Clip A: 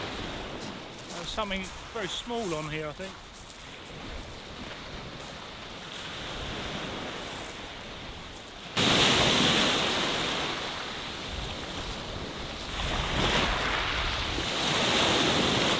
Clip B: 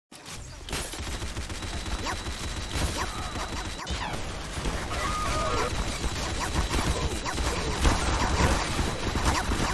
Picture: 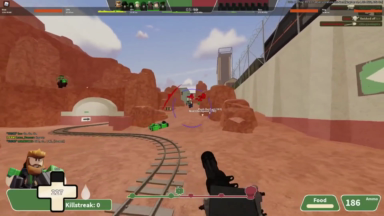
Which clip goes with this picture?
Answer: B